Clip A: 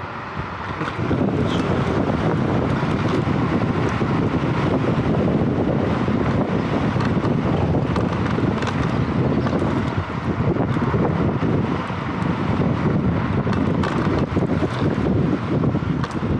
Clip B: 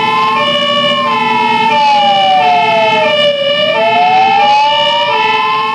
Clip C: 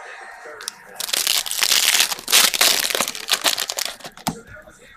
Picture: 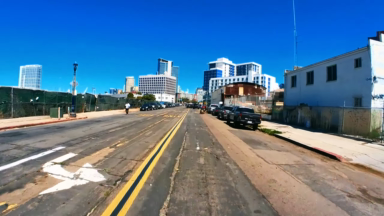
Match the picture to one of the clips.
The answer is A